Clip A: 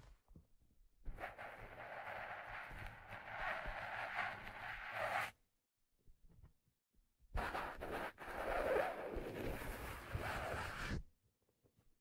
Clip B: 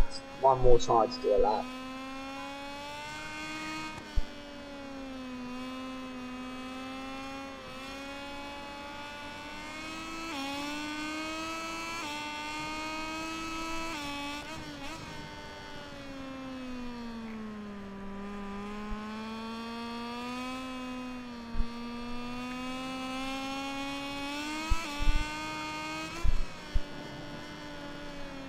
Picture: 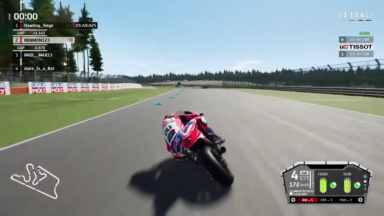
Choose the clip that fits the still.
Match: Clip B